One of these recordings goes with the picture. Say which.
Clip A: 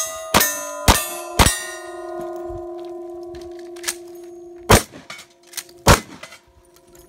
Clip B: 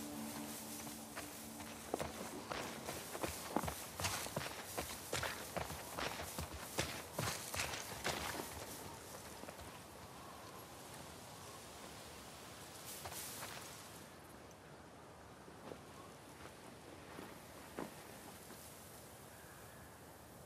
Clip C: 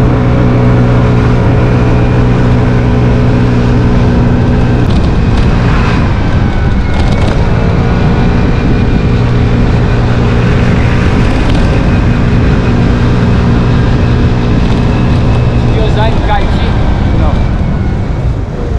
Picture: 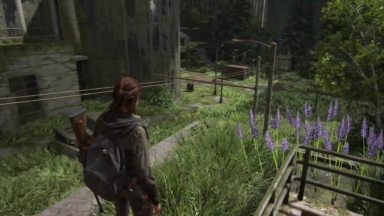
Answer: B